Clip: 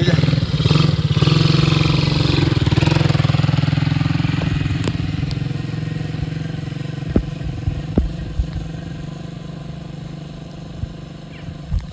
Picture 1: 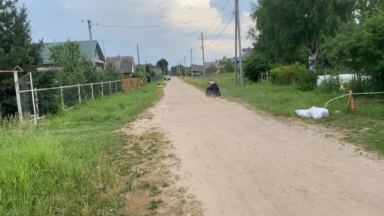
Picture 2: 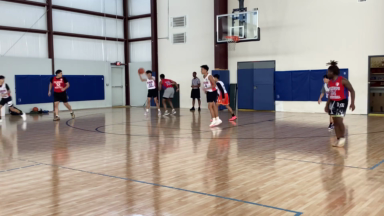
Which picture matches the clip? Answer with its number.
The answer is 1